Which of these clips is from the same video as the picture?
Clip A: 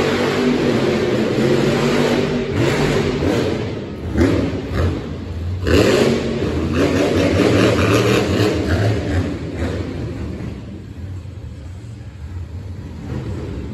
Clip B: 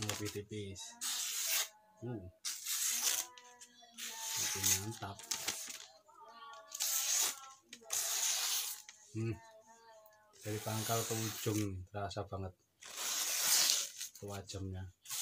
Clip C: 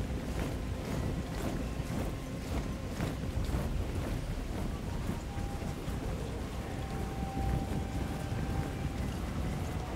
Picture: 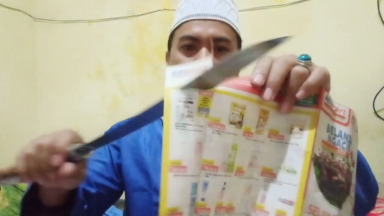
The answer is B